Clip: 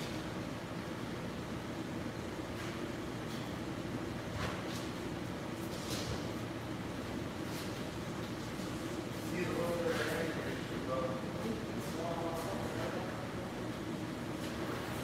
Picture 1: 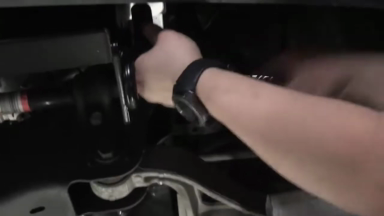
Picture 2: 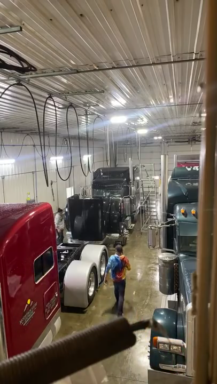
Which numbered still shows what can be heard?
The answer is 2